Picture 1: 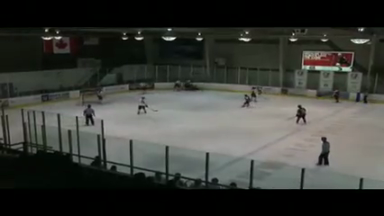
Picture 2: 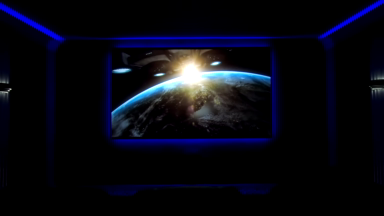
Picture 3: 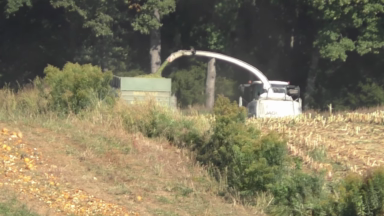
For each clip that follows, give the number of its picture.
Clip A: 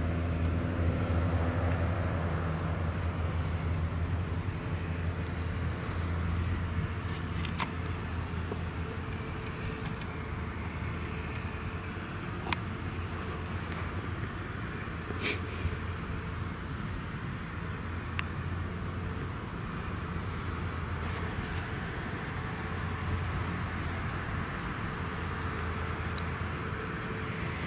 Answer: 3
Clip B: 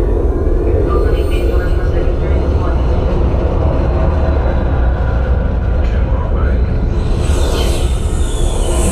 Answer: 2